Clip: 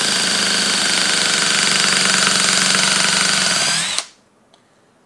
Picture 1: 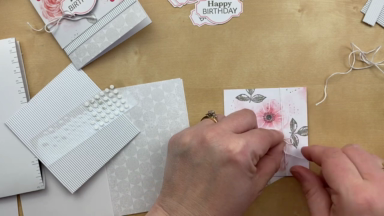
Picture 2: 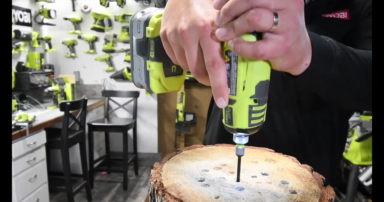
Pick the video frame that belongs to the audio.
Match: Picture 2